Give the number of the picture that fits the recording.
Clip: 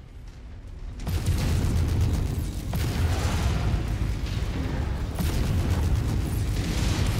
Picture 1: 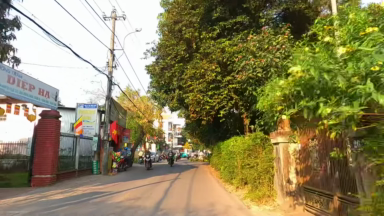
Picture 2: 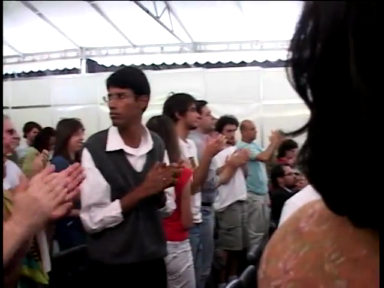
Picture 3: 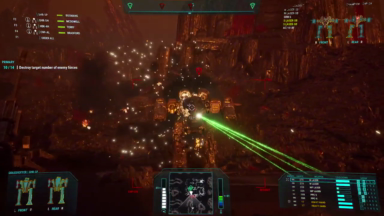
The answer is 3